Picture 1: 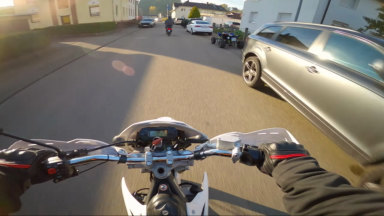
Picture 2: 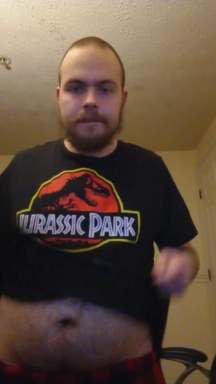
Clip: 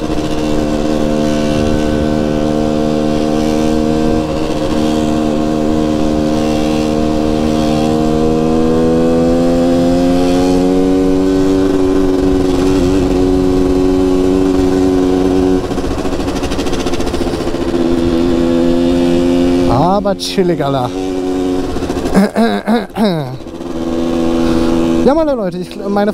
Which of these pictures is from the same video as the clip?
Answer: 1